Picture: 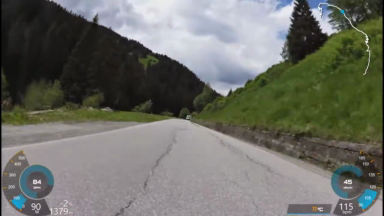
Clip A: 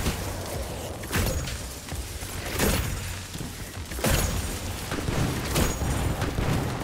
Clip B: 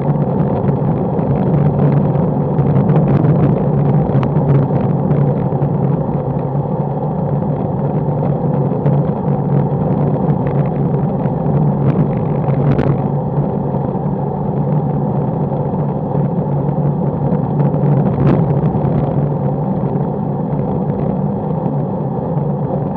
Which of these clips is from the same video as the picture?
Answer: B